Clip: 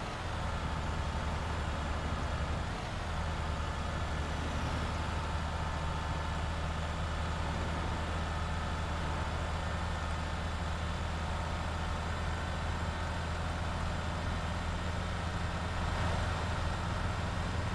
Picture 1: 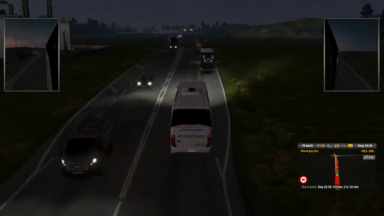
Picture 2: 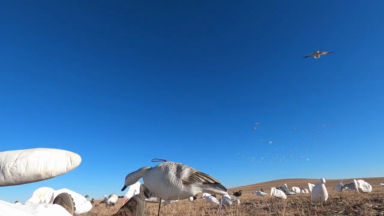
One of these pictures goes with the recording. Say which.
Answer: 1